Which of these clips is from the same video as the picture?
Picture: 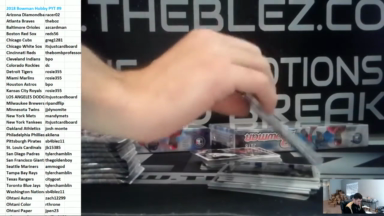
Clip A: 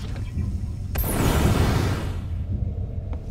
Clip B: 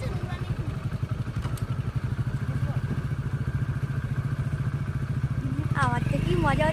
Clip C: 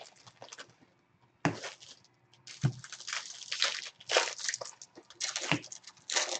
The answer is C